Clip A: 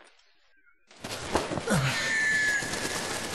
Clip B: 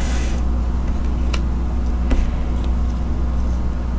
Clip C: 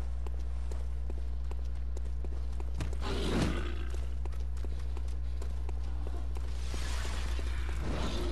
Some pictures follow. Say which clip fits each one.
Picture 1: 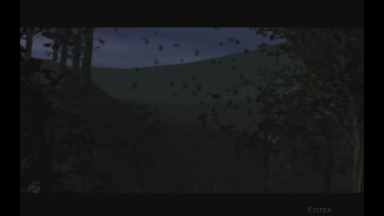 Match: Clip A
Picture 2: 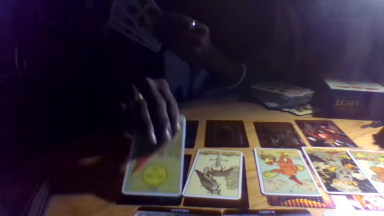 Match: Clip B